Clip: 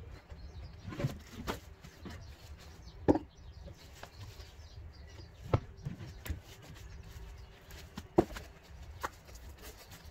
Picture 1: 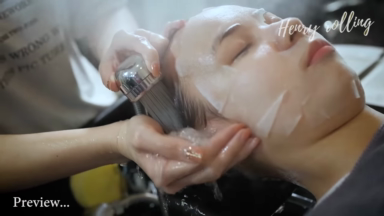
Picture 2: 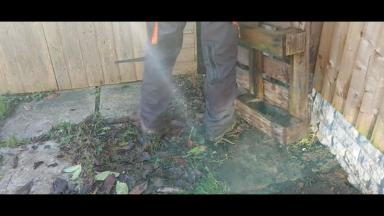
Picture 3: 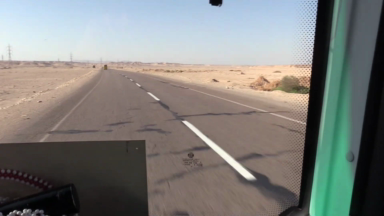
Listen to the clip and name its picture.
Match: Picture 2